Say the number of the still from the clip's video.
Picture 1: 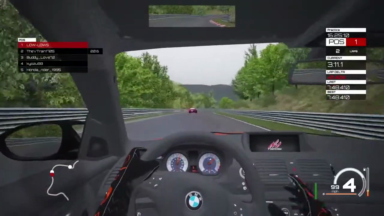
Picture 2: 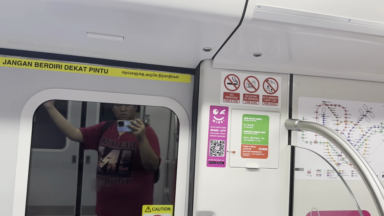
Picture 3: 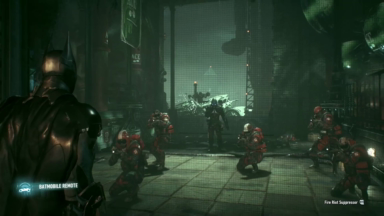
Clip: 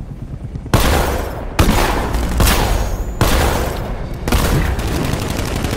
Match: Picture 3